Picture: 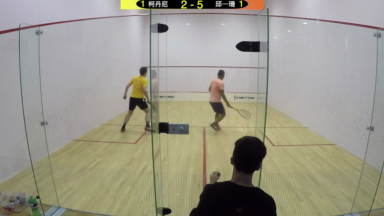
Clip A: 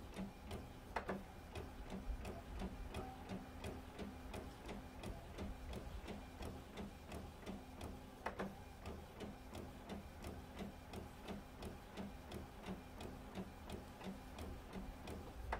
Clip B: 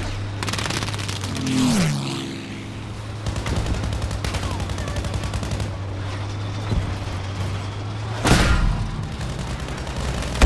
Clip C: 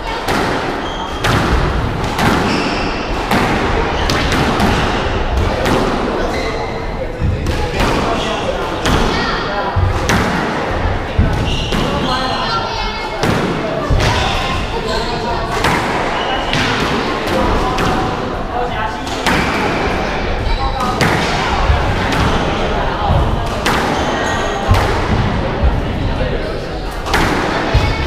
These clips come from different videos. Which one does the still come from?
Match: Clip C